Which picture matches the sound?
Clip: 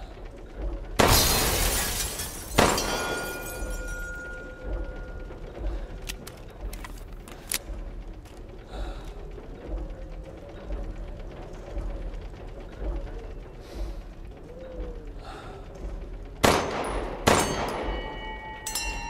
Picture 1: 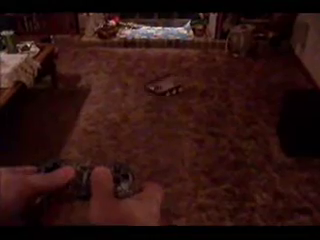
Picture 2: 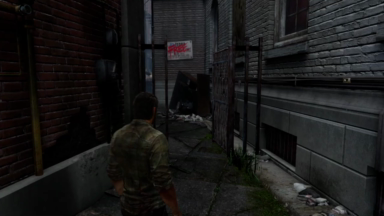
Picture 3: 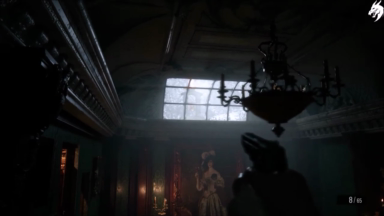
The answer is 3